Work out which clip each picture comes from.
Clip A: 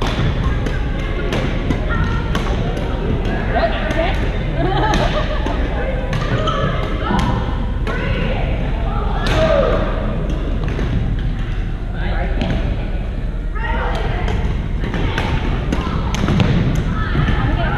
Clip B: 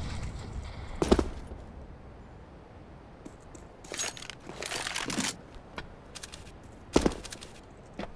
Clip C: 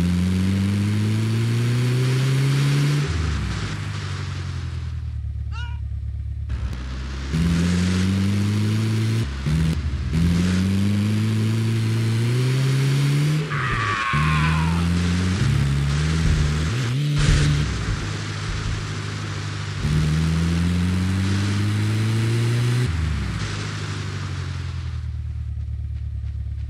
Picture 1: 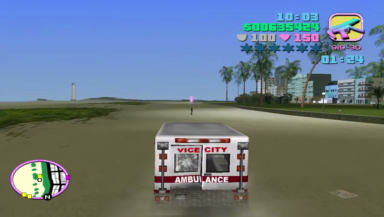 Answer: C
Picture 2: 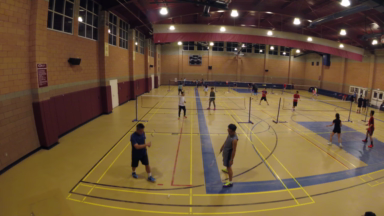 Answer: A